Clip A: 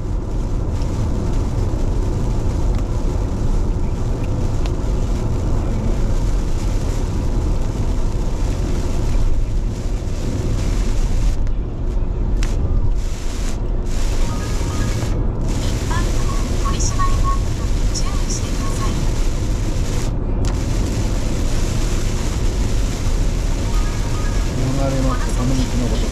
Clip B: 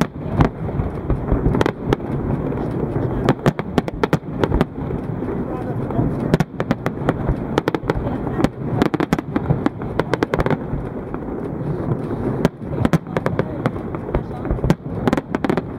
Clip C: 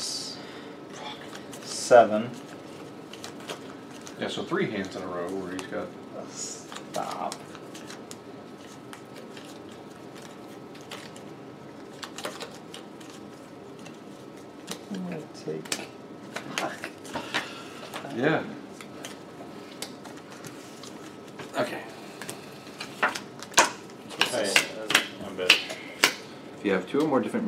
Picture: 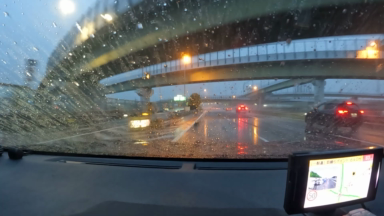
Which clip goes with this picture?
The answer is A